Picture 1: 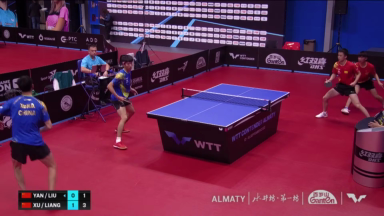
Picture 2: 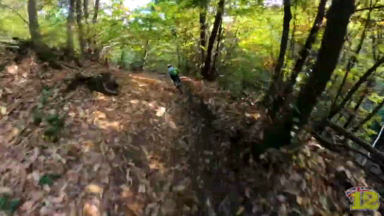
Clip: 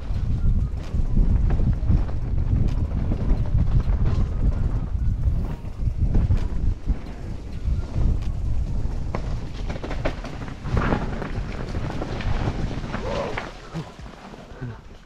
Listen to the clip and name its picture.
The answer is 2